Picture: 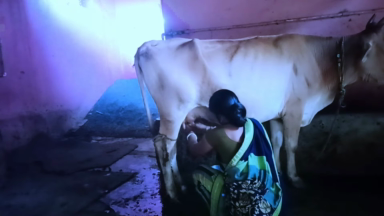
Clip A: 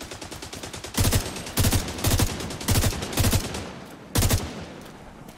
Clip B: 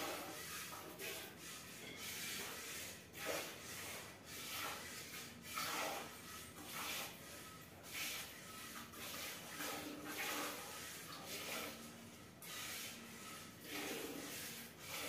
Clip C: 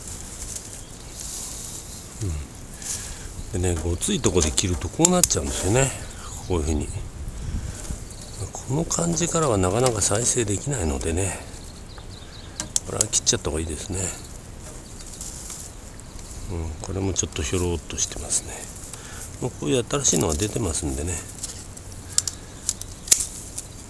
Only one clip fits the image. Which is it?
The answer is B